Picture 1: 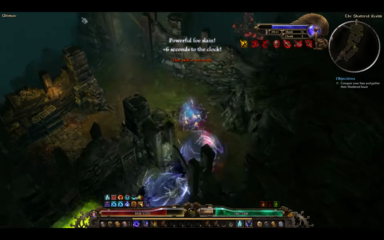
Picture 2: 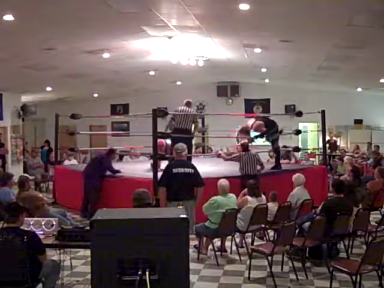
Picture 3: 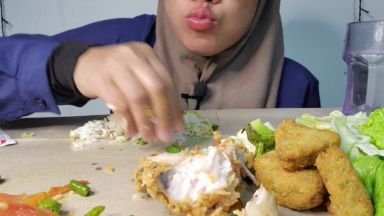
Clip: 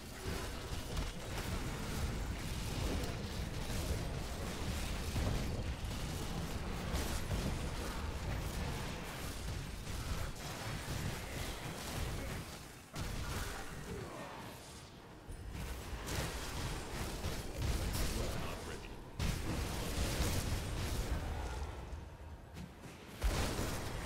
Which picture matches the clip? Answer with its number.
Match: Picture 1